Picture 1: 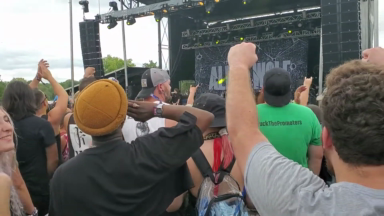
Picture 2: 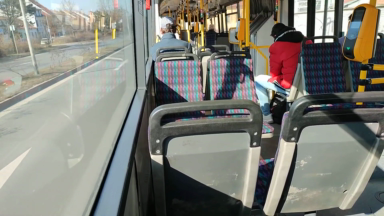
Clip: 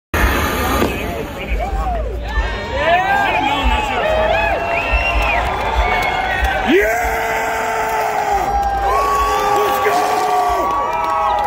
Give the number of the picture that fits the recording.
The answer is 1